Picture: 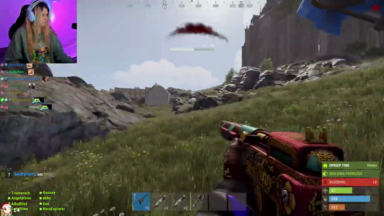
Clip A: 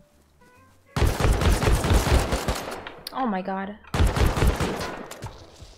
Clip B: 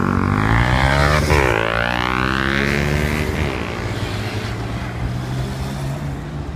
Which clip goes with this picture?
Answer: A